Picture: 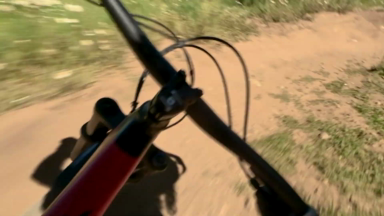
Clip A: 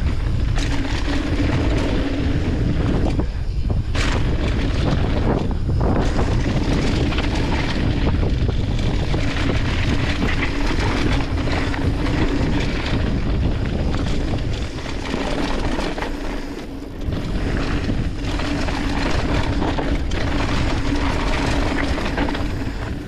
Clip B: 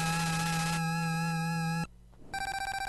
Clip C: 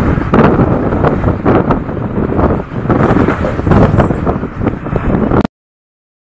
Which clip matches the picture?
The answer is A